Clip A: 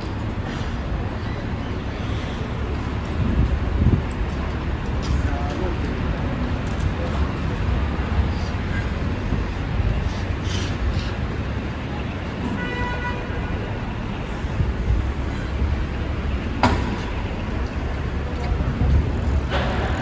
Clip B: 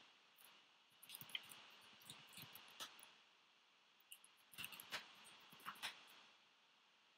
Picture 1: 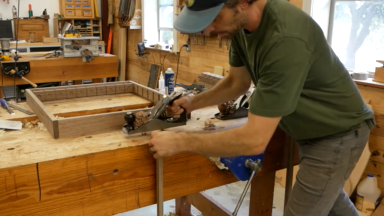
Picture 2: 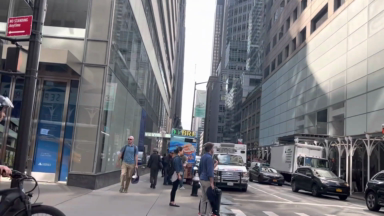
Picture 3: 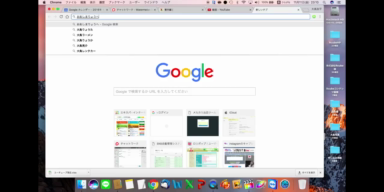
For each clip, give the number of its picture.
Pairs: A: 2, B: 3